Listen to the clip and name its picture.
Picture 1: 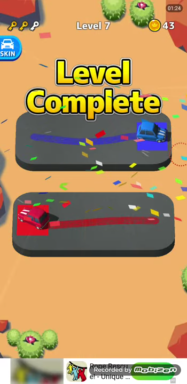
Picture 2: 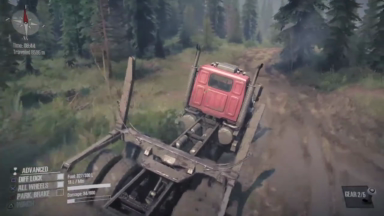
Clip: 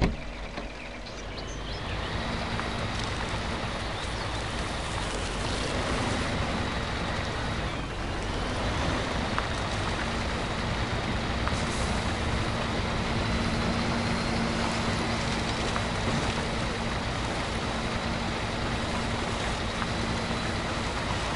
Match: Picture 2